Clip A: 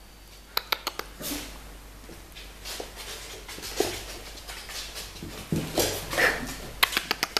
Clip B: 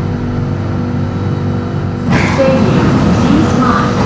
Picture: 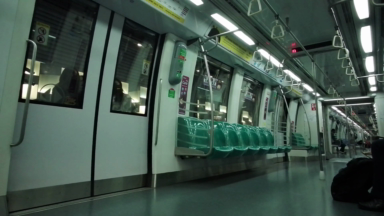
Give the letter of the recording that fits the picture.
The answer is B